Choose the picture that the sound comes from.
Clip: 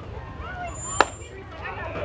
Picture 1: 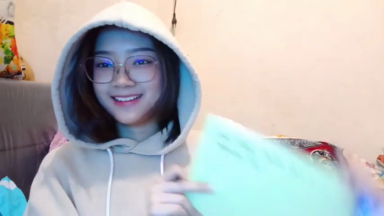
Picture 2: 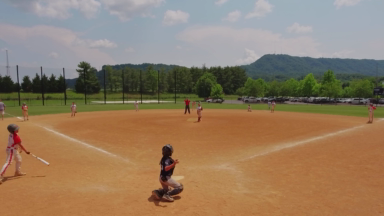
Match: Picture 2